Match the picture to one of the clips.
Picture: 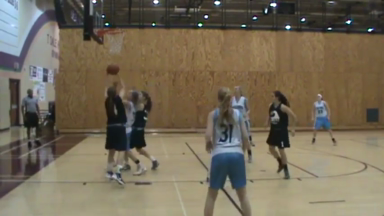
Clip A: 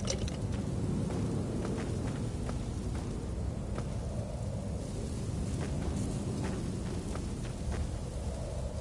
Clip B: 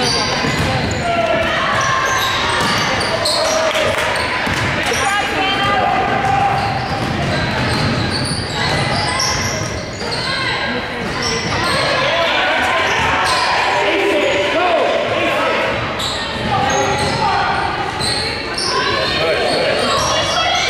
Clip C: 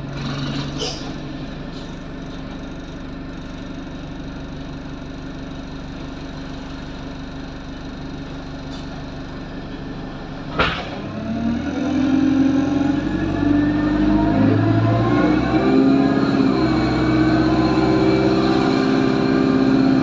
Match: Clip B